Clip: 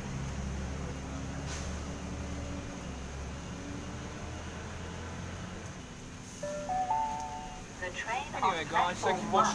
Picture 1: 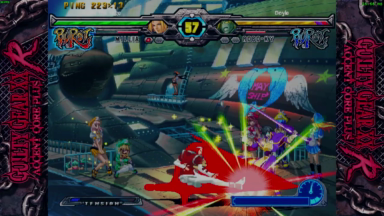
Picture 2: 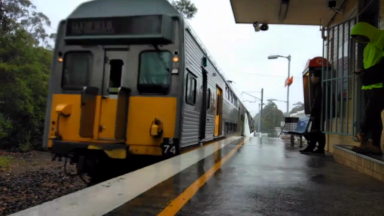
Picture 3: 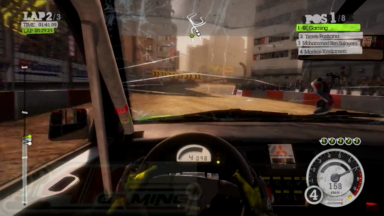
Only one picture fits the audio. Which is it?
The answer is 2